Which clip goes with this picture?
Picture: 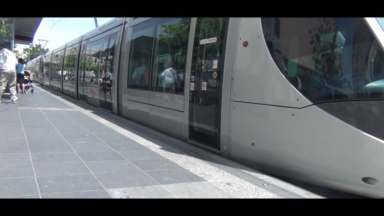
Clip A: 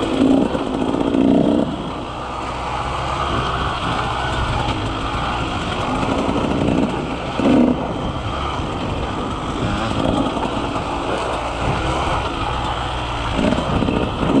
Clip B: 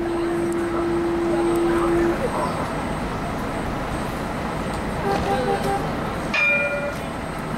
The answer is B